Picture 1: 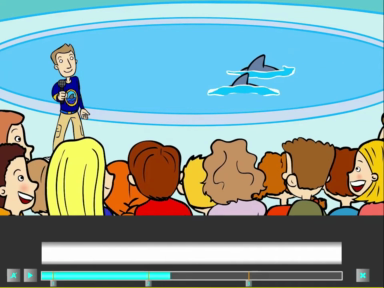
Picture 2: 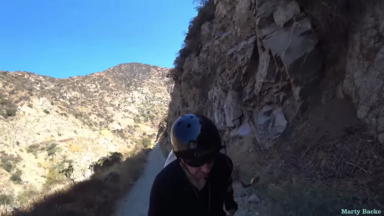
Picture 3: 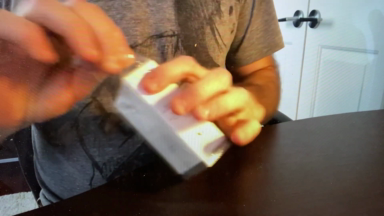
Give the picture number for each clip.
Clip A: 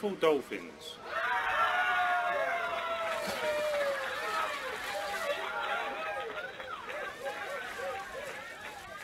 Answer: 1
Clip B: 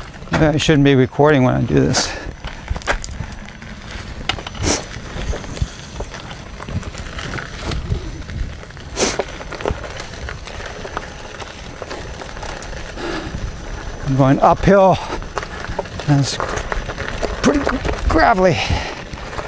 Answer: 2